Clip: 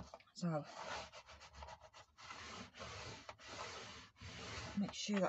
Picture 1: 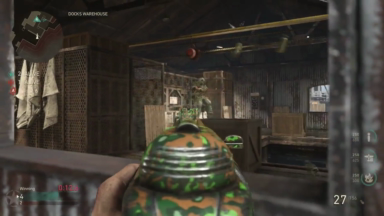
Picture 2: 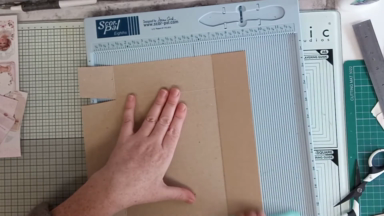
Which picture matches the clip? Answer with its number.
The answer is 2